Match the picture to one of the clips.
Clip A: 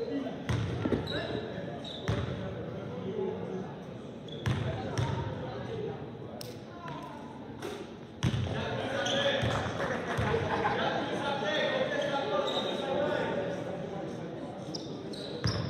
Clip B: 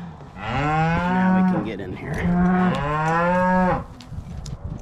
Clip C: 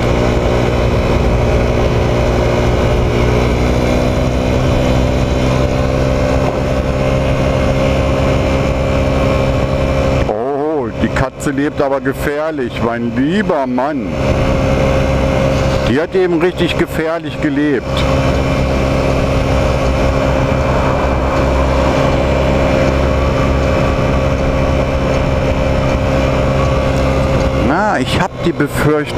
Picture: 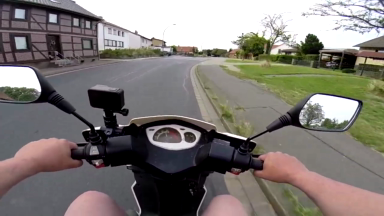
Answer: C